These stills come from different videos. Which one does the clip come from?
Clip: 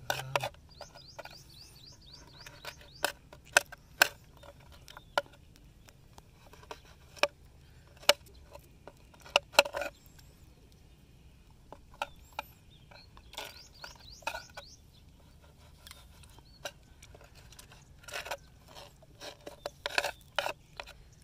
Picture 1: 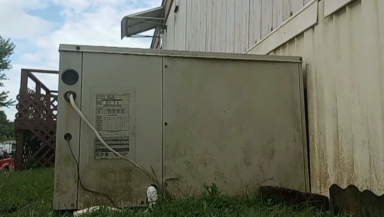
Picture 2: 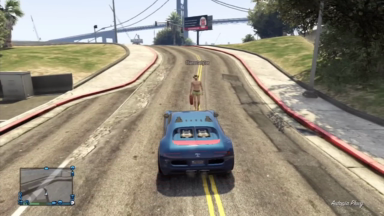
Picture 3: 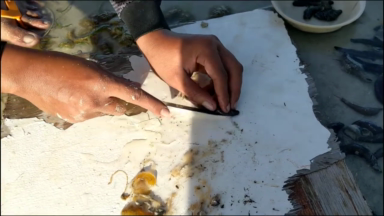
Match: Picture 3